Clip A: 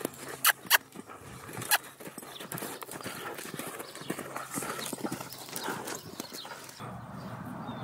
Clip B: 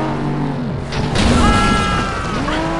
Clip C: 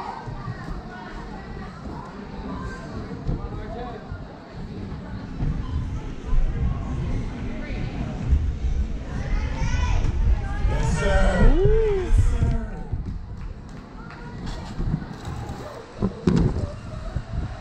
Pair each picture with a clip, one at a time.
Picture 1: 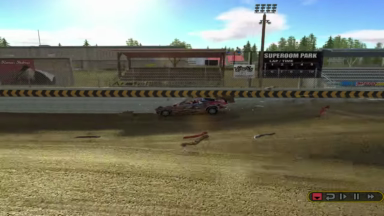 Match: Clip B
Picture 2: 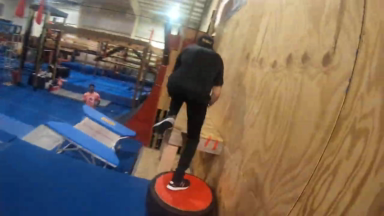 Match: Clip C